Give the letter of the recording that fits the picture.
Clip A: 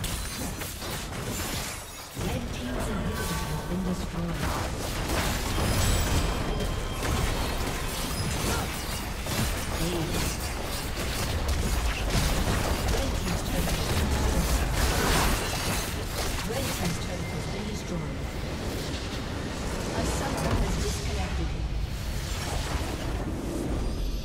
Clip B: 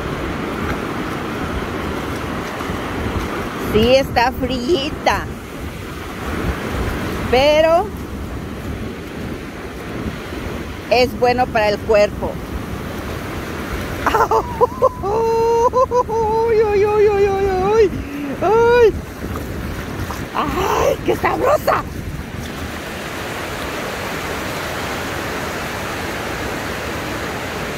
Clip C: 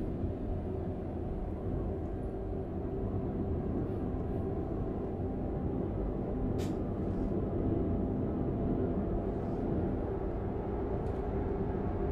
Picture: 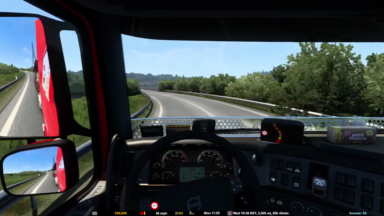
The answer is C